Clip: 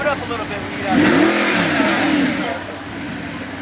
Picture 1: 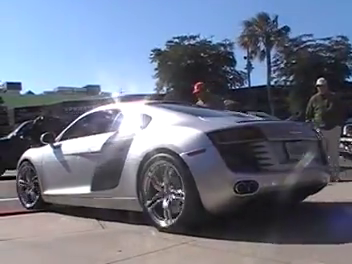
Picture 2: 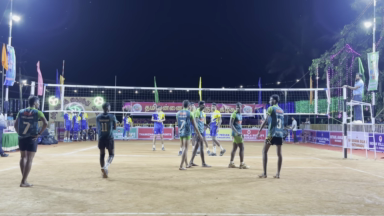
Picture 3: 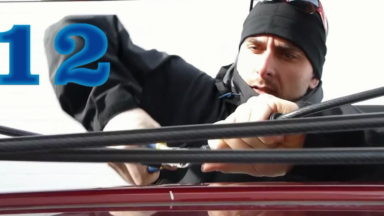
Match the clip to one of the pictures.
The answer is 1